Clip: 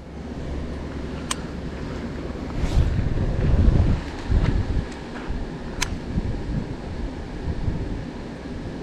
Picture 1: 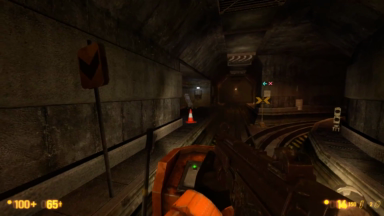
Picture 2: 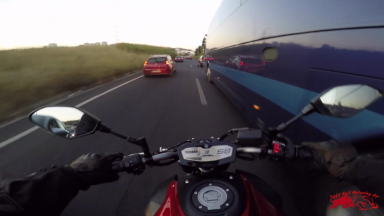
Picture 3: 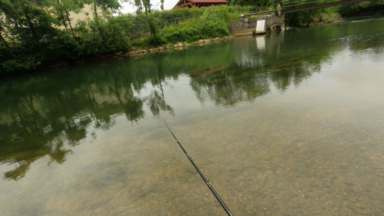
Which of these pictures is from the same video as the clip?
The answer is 3